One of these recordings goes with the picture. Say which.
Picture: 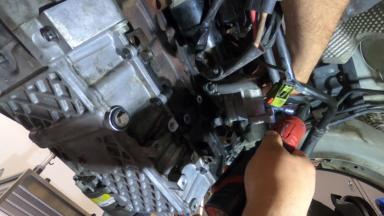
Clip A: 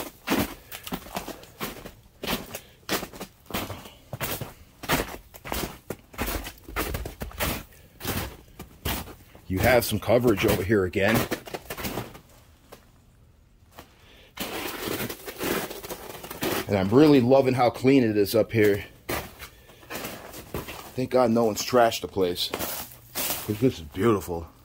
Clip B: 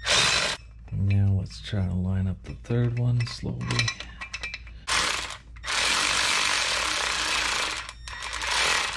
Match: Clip B